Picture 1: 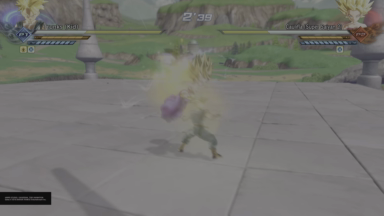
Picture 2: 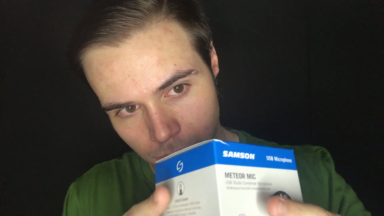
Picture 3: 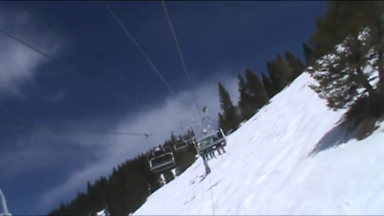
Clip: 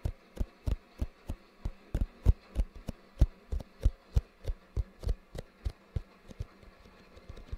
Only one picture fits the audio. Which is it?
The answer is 2